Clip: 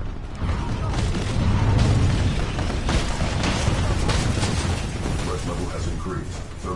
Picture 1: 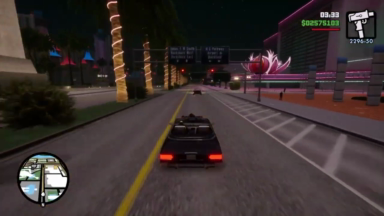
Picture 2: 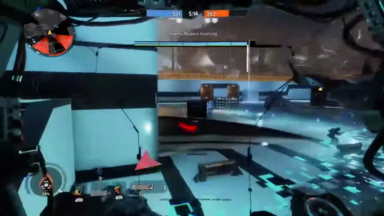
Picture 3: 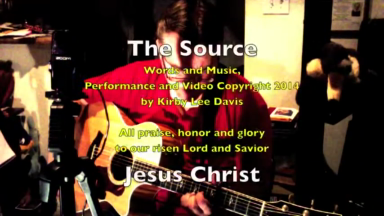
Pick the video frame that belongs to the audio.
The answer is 2